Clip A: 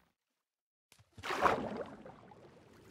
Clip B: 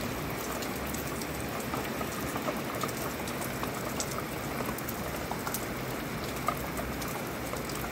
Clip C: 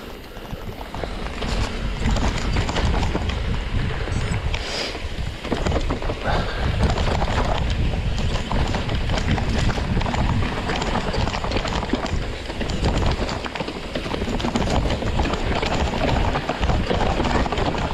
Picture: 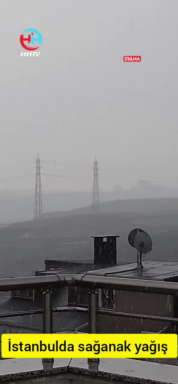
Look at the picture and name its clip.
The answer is B